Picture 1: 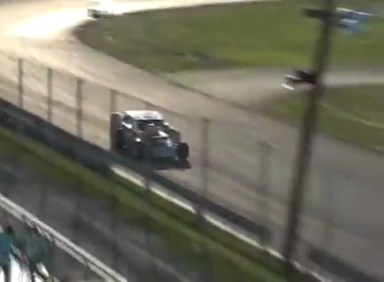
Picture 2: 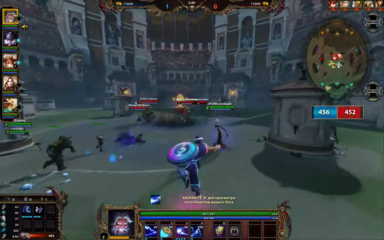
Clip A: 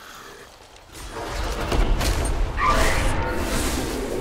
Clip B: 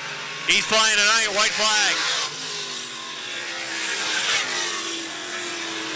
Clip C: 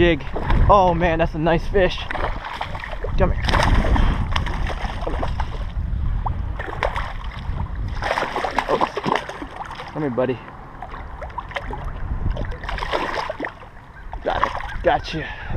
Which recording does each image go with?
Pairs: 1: B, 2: A